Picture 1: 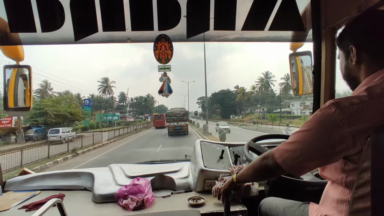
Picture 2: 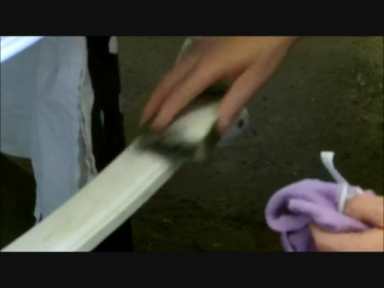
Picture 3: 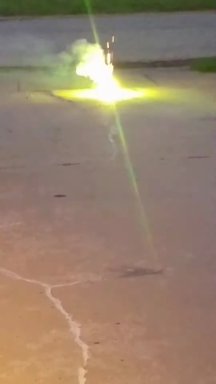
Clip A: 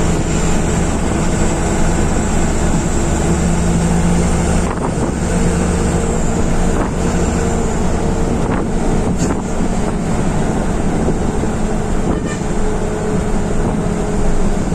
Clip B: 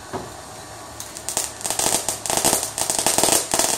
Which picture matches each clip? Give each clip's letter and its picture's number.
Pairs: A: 1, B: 3